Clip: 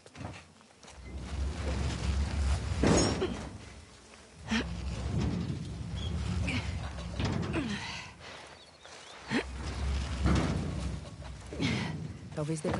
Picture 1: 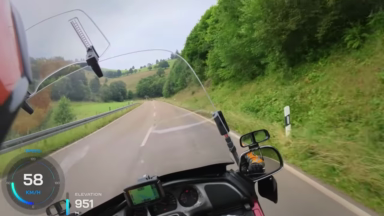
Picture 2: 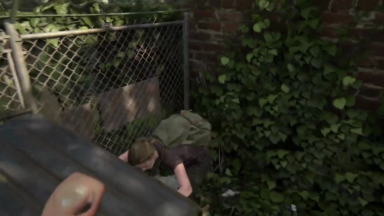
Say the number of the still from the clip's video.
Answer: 2